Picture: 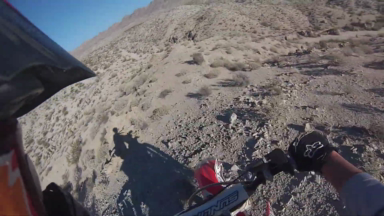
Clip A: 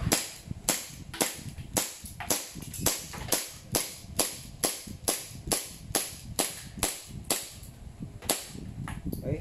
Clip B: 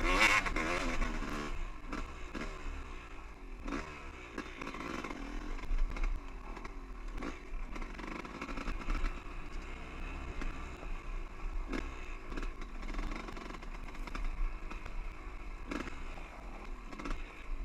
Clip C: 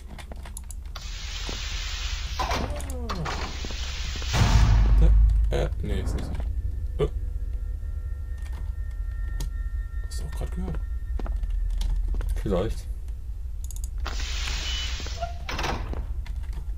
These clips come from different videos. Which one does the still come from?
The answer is B